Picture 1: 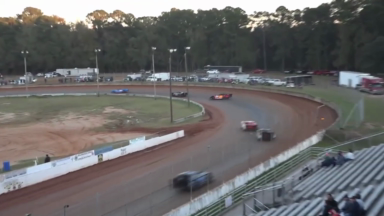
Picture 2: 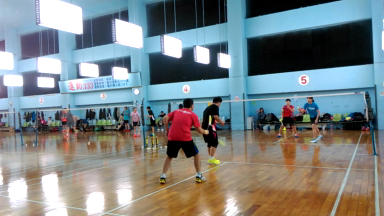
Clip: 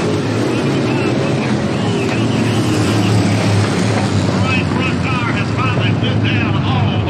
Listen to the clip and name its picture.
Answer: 1